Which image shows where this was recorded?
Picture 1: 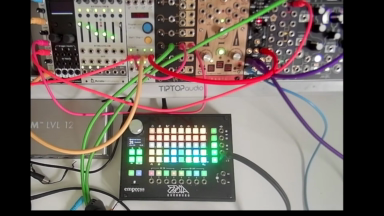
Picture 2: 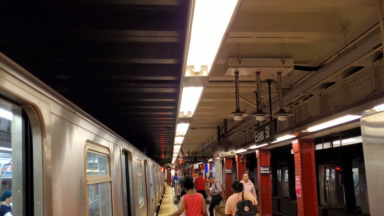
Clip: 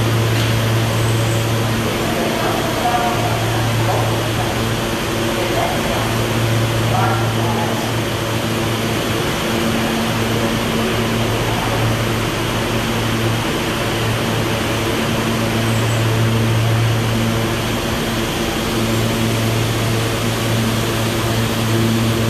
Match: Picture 2